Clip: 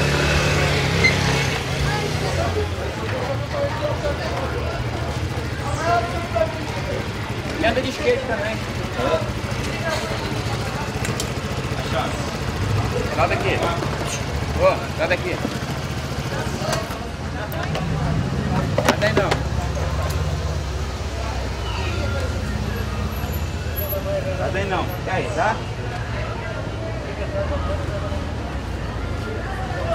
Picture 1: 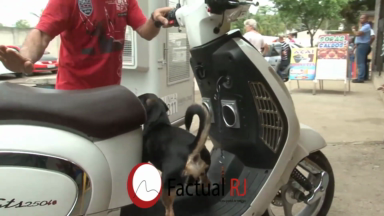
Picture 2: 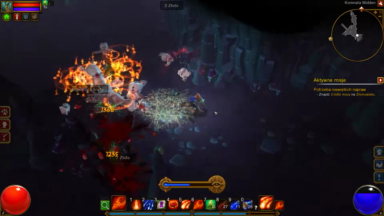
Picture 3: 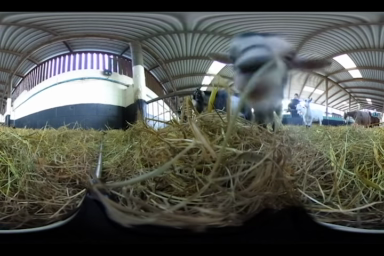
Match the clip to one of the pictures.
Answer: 1